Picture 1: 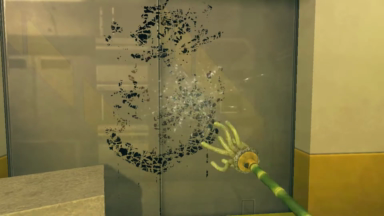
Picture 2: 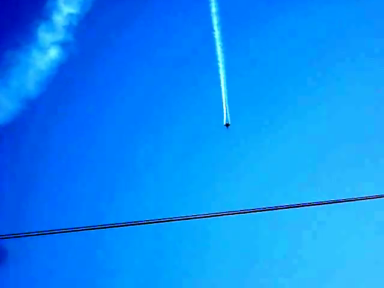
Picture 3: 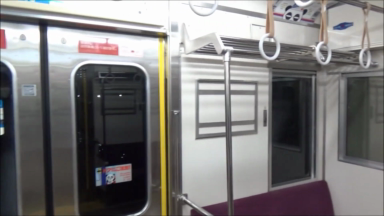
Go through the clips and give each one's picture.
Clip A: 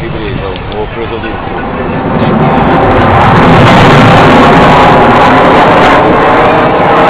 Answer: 2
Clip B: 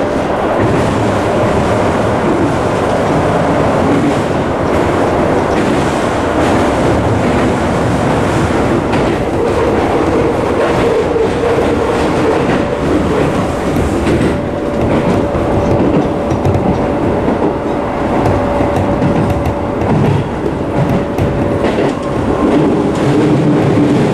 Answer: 3